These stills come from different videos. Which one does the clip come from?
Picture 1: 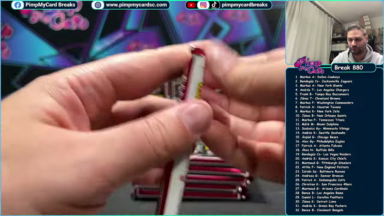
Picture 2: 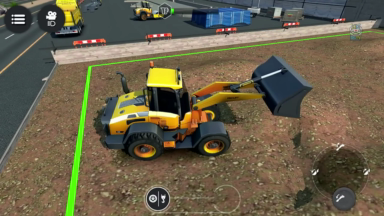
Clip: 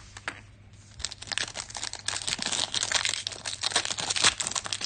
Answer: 1